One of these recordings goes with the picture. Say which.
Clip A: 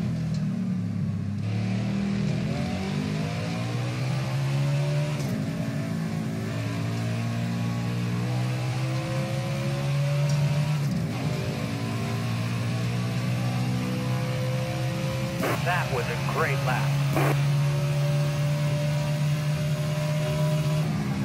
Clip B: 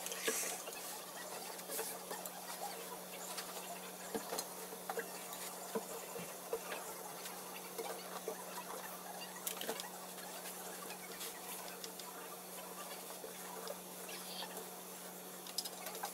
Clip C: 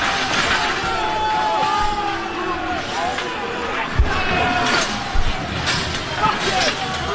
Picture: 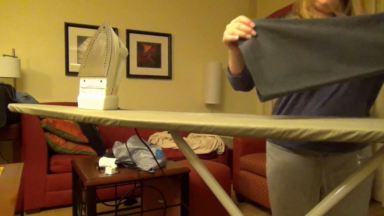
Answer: B